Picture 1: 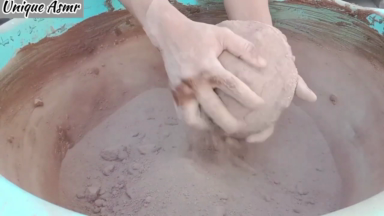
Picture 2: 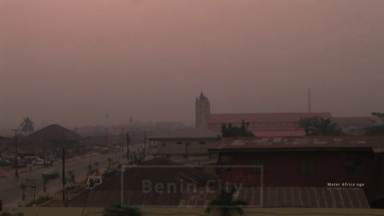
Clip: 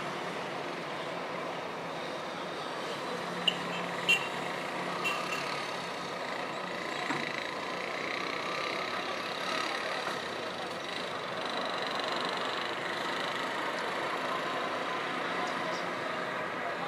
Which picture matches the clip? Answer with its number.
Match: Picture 2